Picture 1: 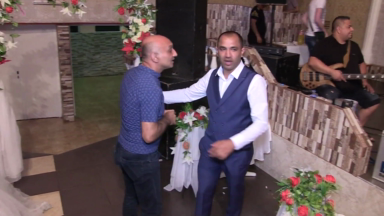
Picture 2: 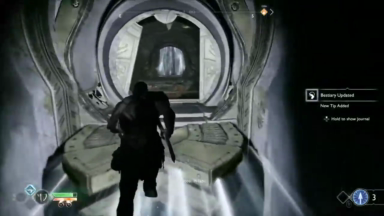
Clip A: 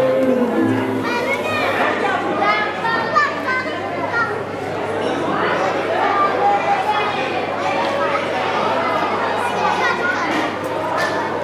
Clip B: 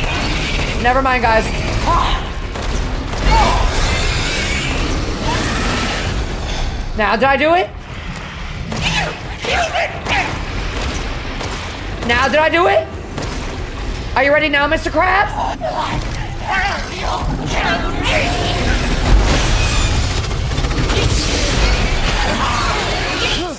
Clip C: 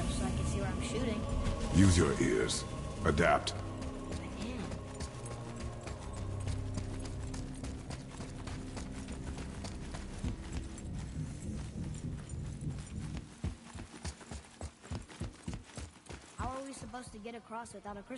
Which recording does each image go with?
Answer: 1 A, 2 C